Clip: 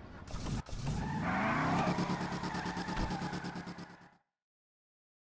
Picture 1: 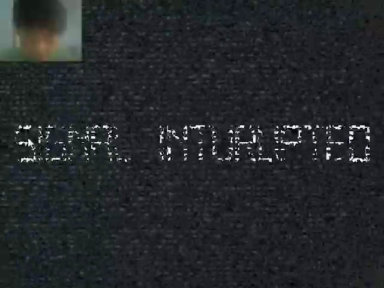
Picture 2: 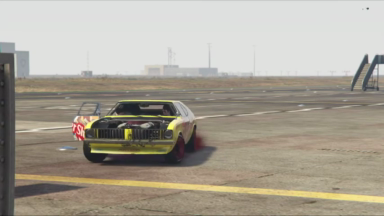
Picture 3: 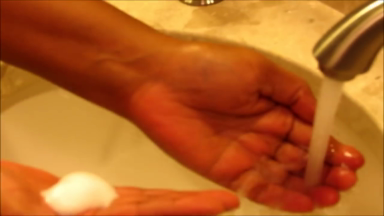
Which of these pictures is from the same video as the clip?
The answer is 2